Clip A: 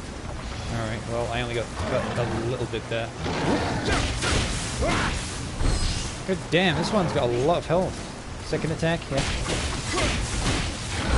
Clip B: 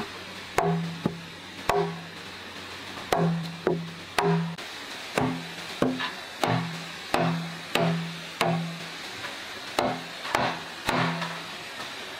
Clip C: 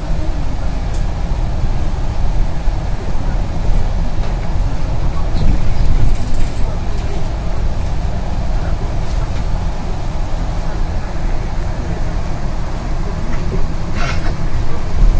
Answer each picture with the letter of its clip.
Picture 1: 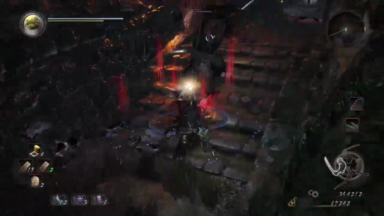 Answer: A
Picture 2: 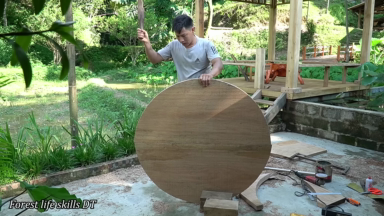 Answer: B